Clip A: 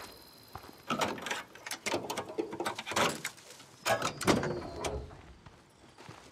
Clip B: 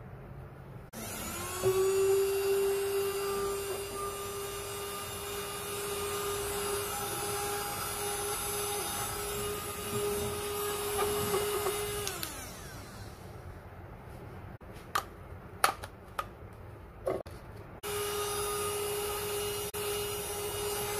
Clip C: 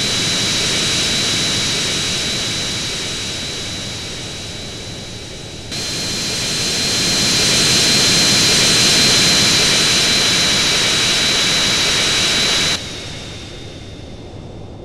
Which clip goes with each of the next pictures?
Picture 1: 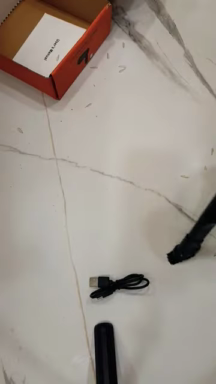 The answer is B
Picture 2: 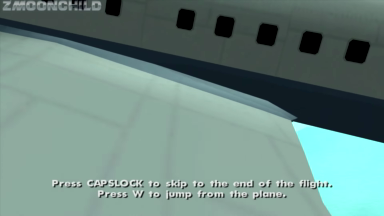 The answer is C